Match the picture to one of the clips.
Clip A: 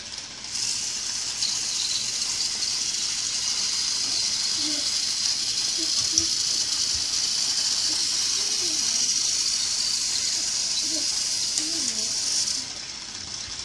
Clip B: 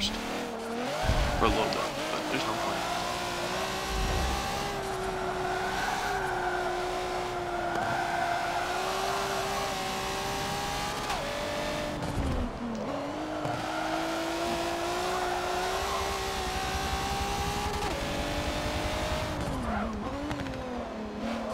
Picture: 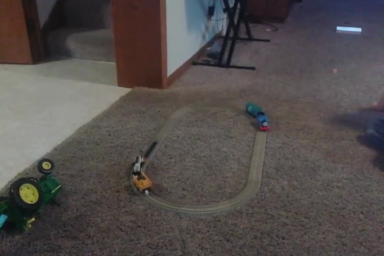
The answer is A